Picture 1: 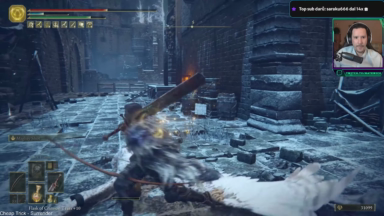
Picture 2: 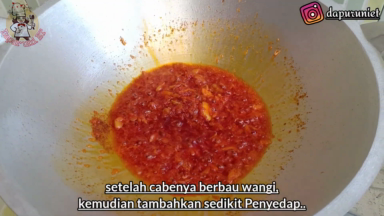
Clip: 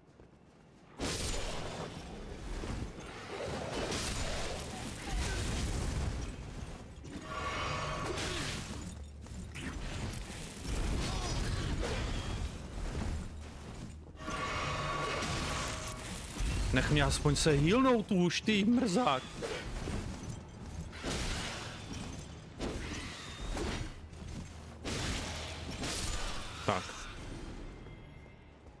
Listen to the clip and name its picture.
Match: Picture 1